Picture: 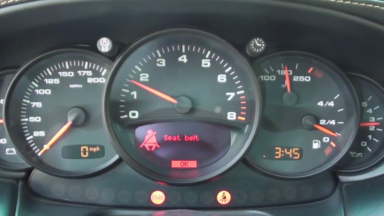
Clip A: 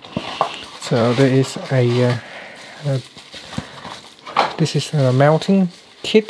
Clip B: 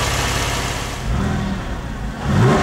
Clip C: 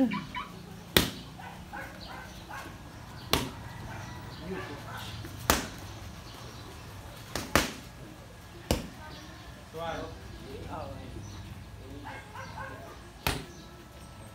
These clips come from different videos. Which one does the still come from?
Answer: B